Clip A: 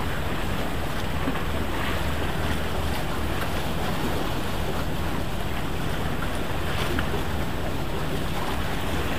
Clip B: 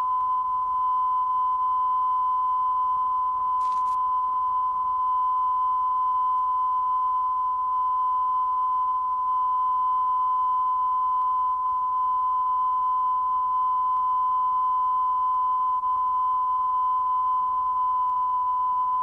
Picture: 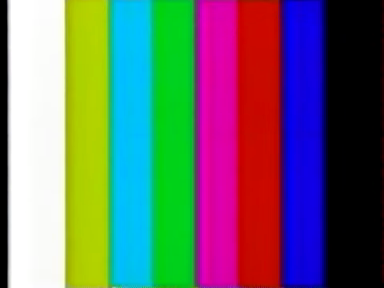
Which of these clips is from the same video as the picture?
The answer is B